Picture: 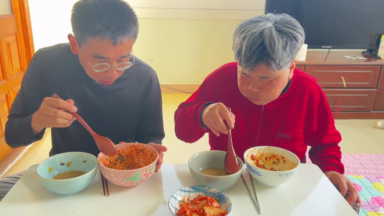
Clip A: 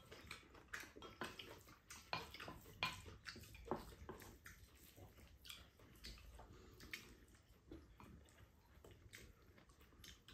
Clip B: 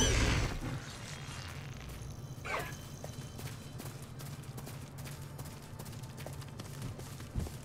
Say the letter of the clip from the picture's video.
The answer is A